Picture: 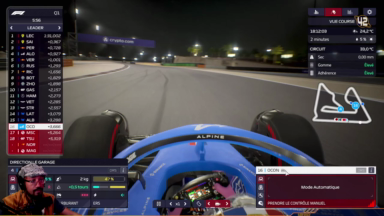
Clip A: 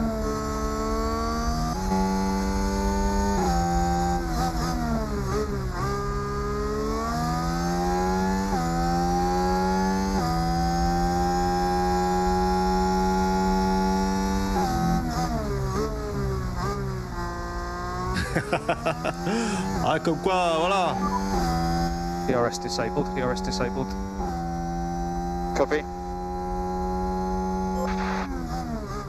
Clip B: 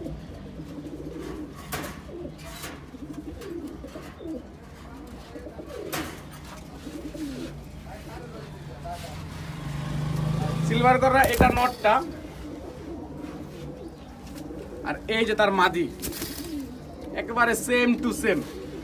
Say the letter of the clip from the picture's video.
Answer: A